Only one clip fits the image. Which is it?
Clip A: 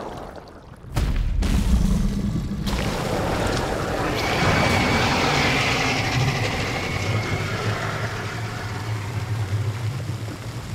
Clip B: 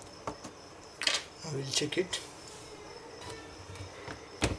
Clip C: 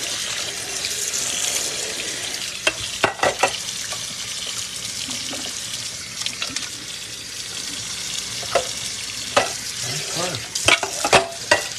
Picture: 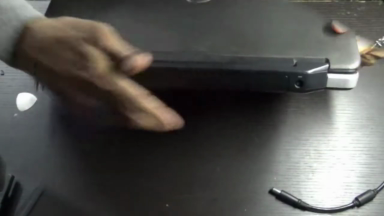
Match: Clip B